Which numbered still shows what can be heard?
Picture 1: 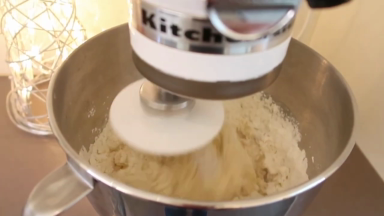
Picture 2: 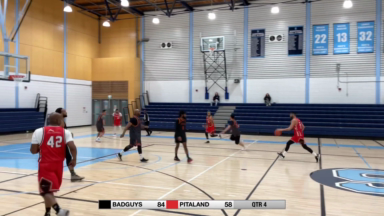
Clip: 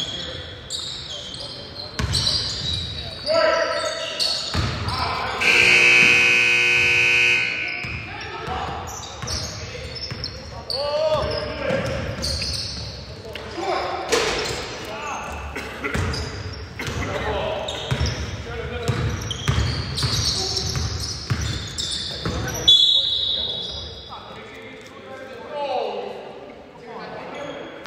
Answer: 2